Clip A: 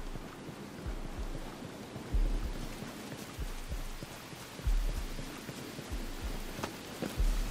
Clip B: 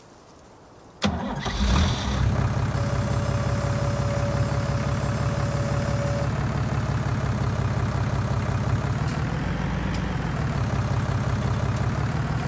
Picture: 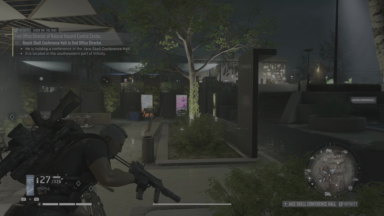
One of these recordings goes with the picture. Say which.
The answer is A